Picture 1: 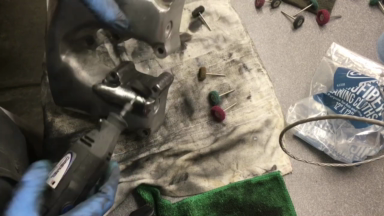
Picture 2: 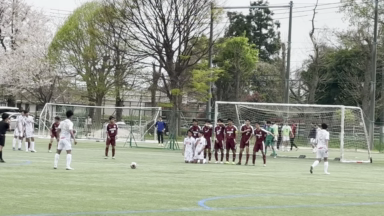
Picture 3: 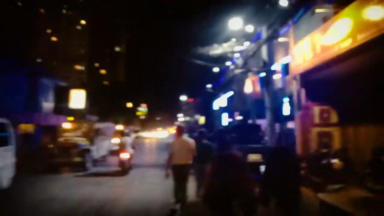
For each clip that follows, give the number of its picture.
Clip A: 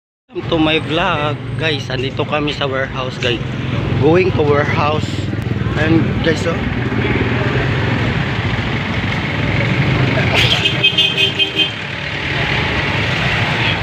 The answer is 3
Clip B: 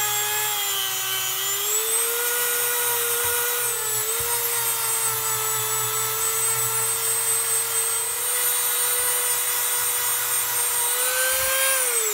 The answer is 1